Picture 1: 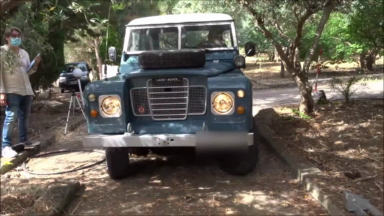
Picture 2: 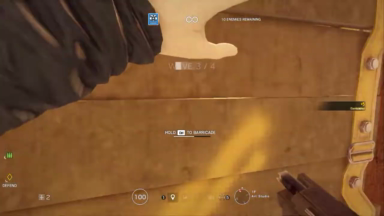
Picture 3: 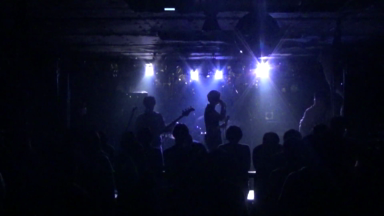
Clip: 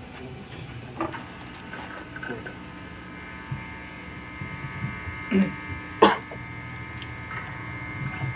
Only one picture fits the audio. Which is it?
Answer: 3